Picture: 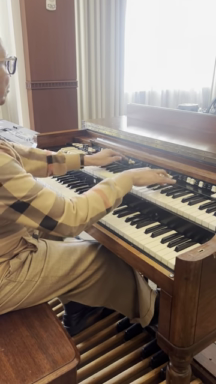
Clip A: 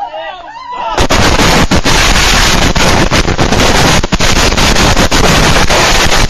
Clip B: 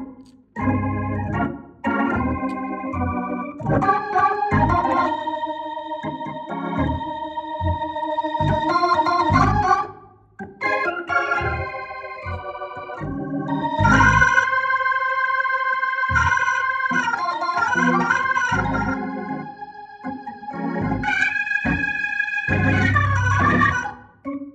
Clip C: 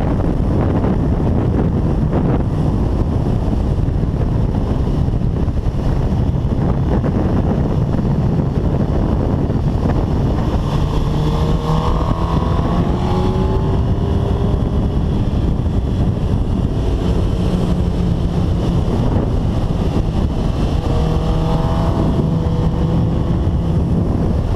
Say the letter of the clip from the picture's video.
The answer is B